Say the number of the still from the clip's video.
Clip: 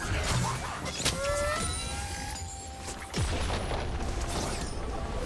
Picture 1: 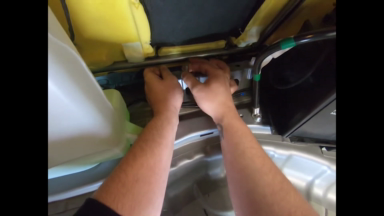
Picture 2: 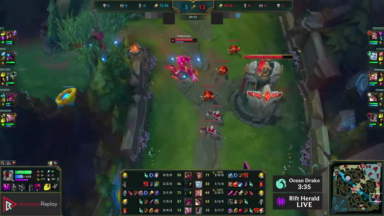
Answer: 2